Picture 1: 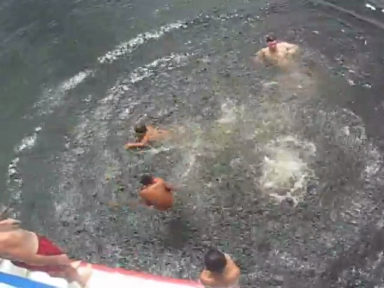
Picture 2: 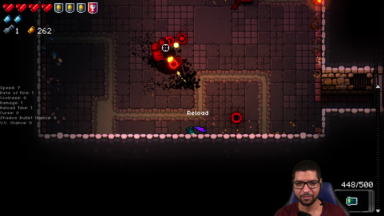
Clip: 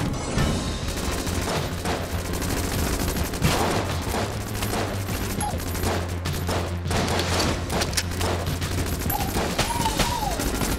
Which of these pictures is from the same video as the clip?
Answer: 2